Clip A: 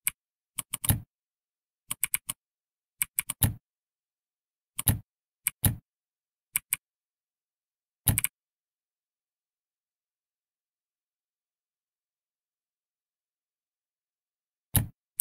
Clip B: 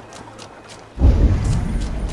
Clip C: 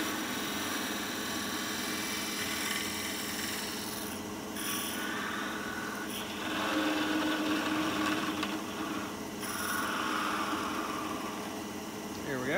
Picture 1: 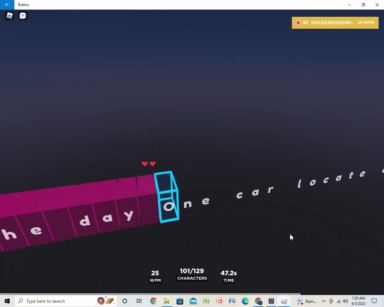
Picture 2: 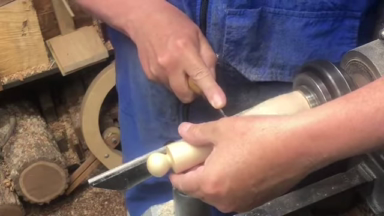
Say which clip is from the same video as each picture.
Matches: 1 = A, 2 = C